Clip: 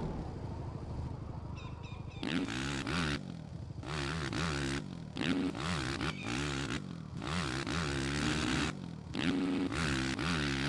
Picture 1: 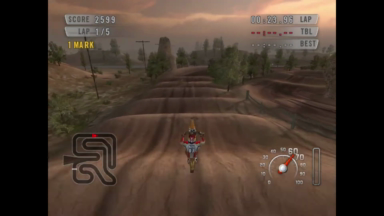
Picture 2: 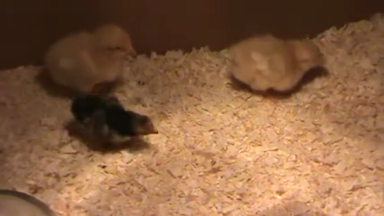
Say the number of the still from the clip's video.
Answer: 1